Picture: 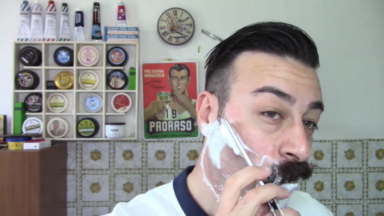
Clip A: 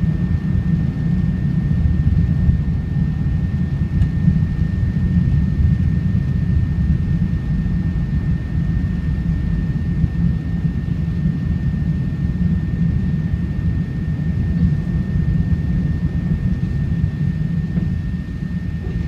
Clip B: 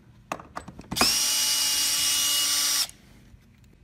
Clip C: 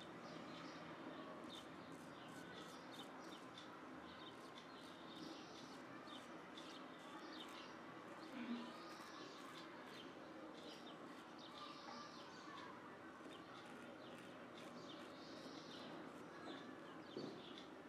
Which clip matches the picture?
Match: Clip C